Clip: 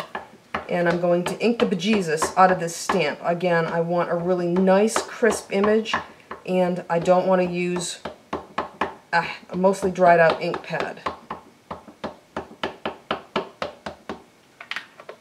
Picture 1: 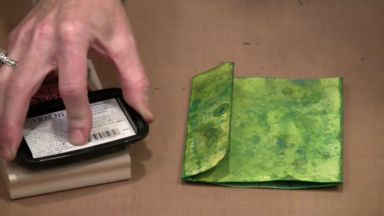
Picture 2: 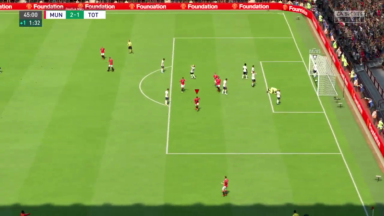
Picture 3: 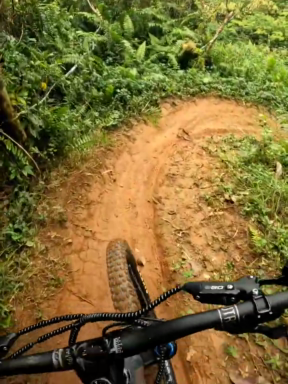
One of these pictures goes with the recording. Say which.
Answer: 1